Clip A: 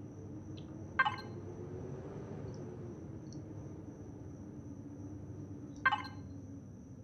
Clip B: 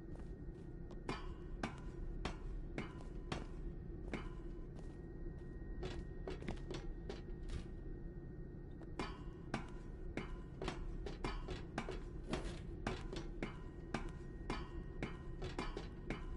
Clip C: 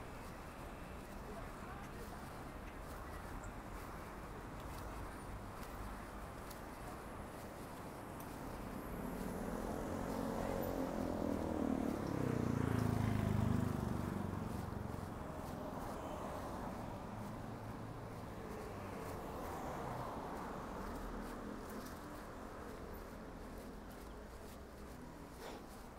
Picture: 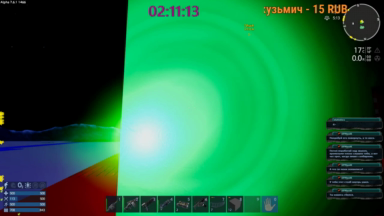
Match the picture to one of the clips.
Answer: A